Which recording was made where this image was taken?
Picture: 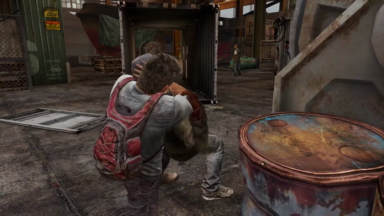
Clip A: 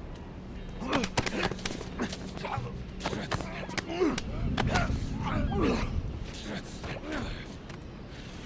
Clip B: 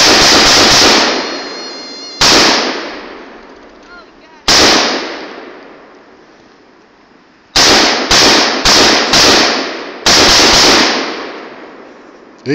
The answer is A